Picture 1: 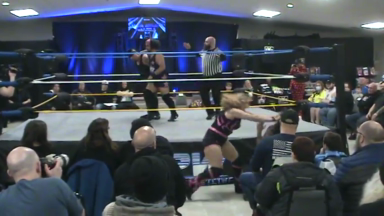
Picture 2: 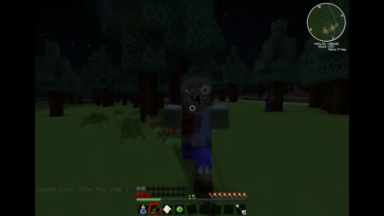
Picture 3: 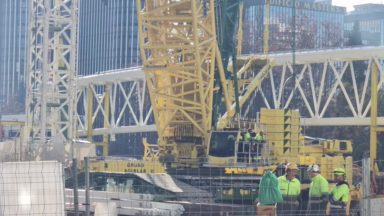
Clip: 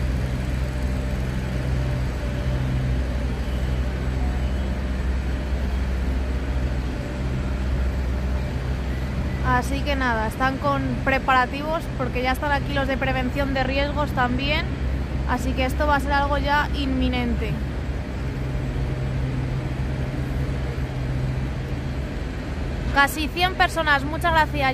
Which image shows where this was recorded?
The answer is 3